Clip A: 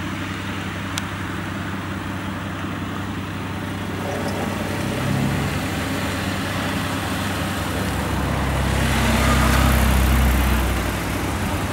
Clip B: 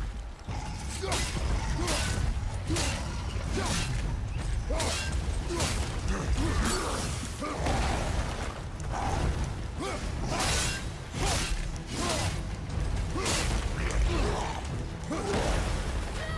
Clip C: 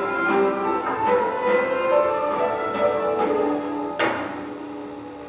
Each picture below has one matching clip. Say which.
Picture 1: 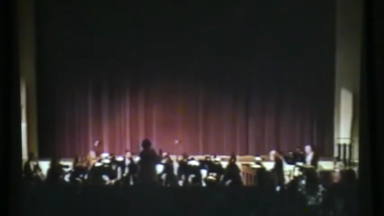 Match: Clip C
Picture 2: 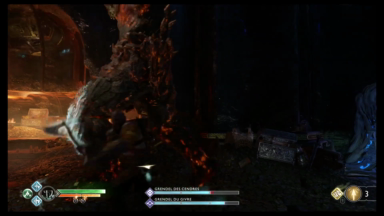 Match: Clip B